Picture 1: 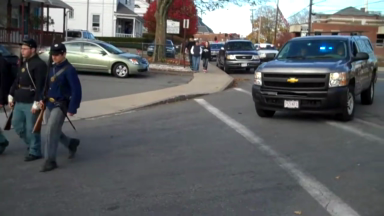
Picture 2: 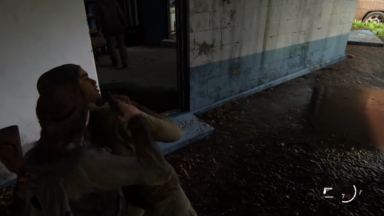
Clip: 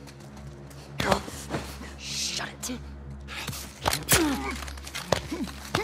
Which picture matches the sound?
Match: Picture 2